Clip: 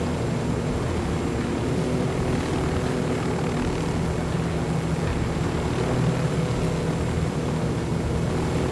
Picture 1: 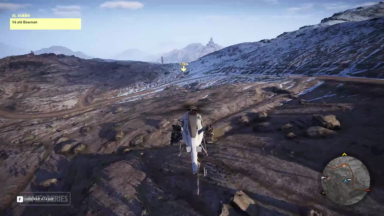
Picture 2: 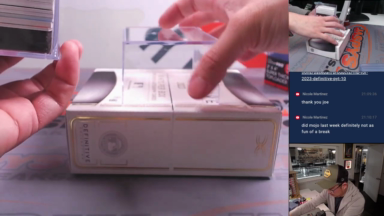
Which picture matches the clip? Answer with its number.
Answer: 1